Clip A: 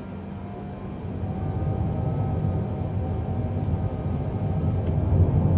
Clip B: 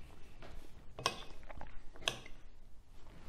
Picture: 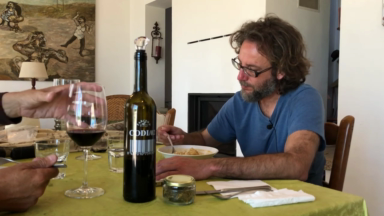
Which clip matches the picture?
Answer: B